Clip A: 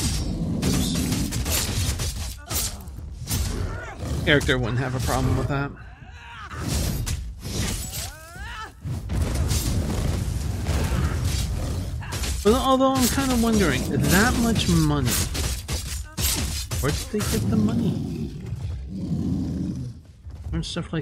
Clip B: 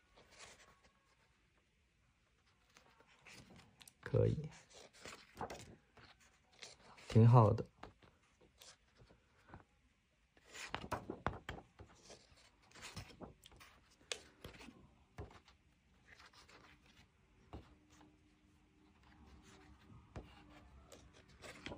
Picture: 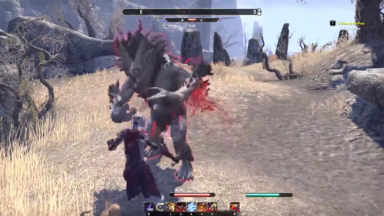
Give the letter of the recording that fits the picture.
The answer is A